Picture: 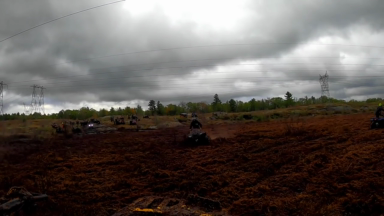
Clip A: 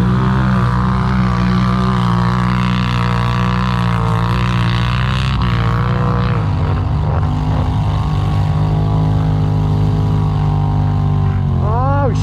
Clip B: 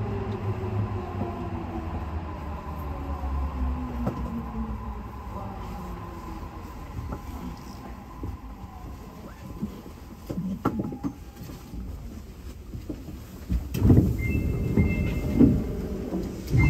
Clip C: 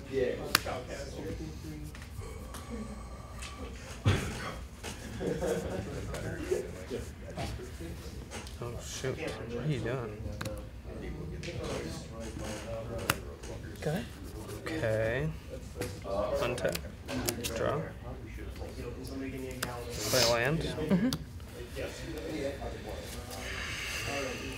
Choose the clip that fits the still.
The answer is A